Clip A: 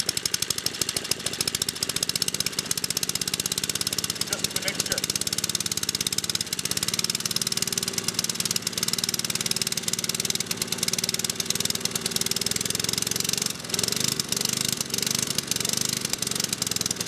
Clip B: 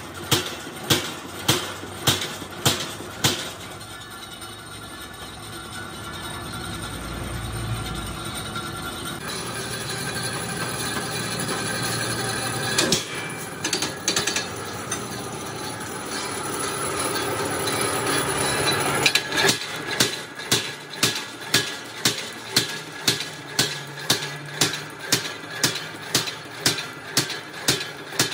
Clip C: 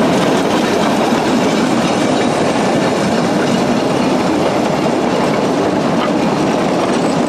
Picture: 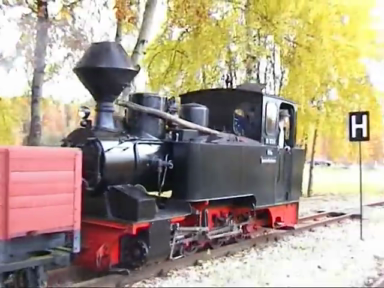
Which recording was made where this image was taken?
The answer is C